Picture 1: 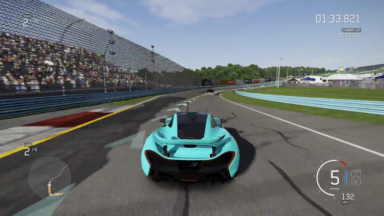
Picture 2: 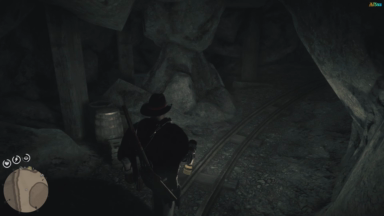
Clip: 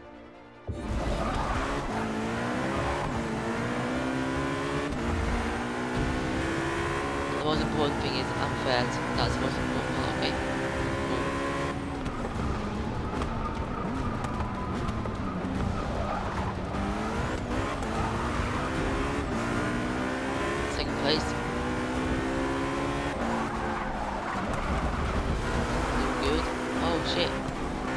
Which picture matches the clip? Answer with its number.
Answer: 1